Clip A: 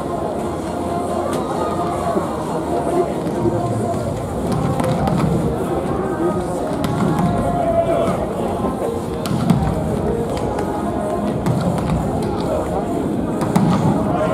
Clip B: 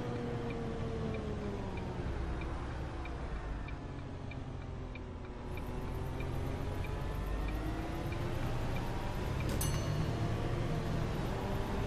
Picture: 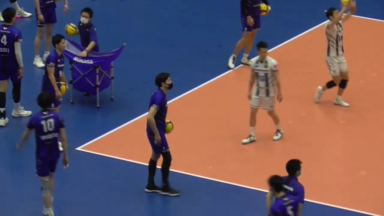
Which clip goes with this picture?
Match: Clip A